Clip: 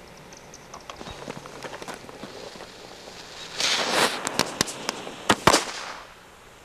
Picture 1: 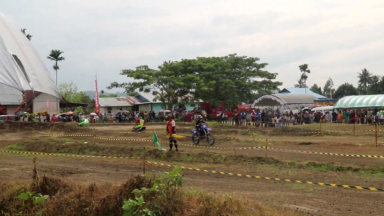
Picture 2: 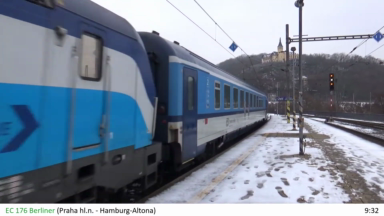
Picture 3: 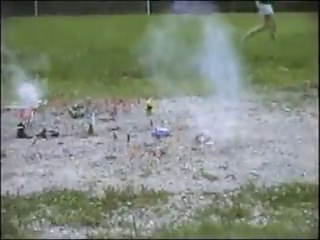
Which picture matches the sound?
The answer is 3